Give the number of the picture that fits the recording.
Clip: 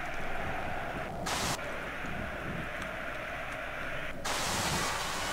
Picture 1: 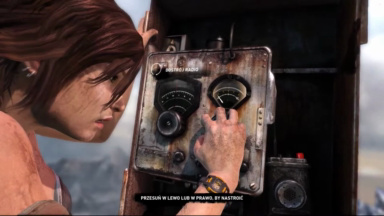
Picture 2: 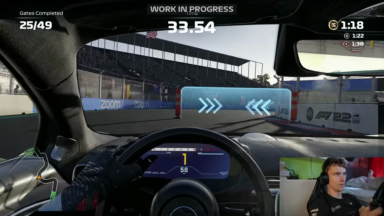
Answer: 1